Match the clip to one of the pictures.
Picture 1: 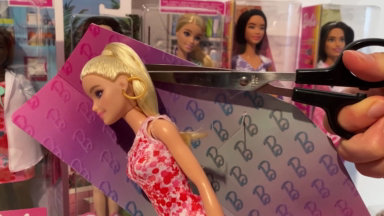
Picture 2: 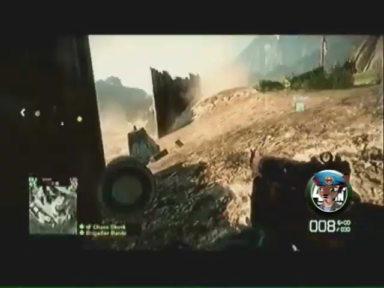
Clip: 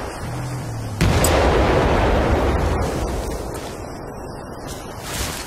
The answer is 2